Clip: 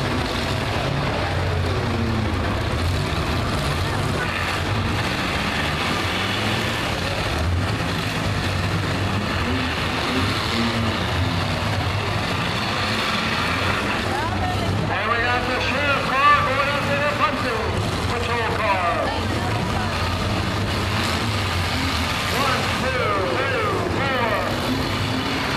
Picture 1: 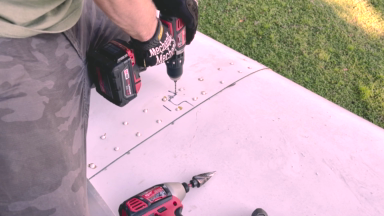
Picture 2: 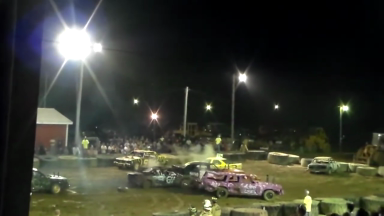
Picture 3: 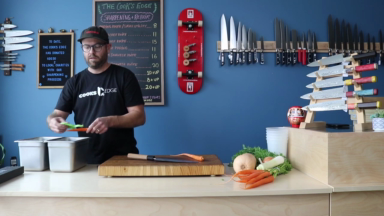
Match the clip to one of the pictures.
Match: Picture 2